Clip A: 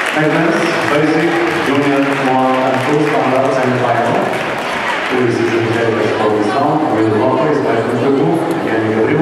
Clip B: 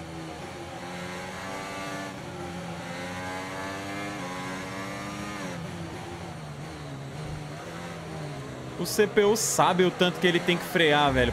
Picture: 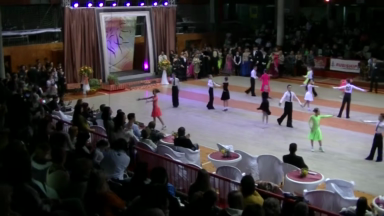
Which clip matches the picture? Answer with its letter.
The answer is A